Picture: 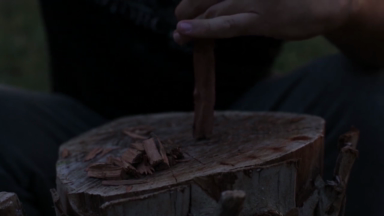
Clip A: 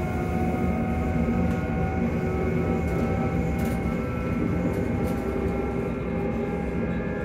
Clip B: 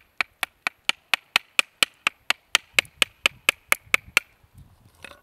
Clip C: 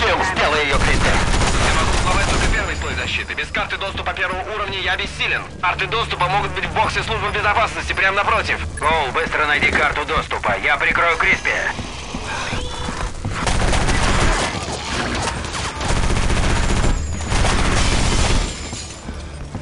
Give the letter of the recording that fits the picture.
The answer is B